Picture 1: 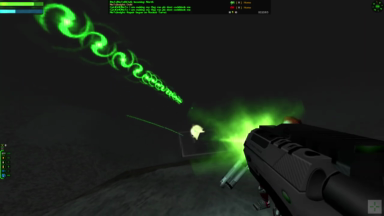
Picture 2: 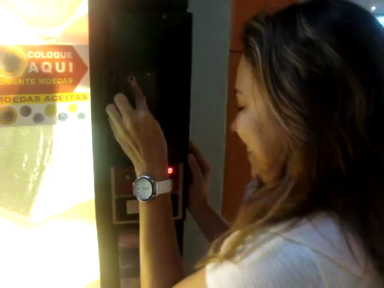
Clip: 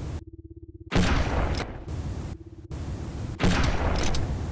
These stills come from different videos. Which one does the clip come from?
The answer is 1